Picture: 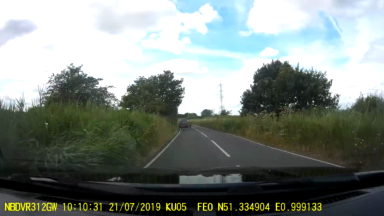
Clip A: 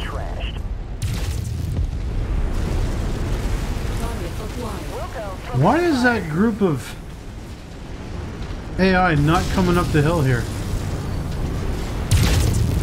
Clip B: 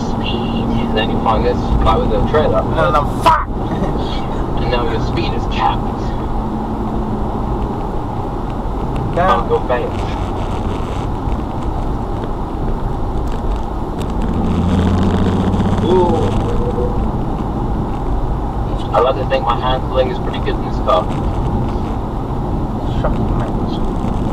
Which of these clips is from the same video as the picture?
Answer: B